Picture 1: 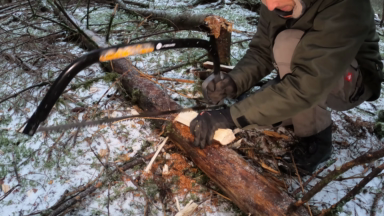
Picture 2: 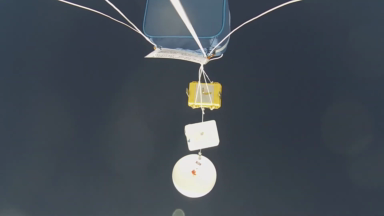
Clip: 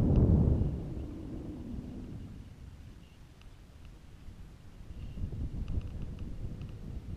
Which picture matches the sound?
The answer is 2